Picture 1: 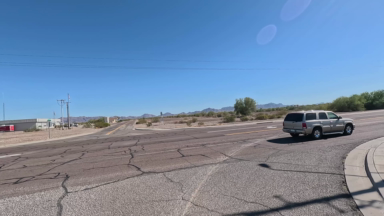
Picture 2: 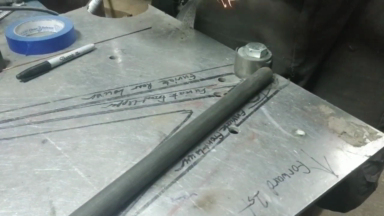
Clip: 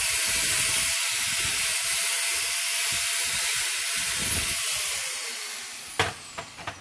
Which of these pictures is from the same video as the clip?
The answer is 2